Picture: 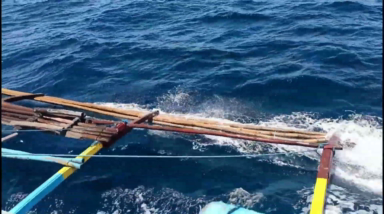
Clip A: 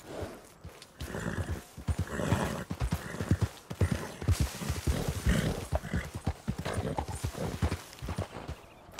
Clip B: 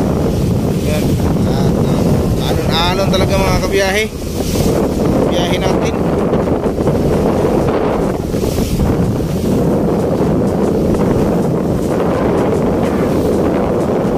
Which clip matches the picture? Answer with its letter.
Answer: B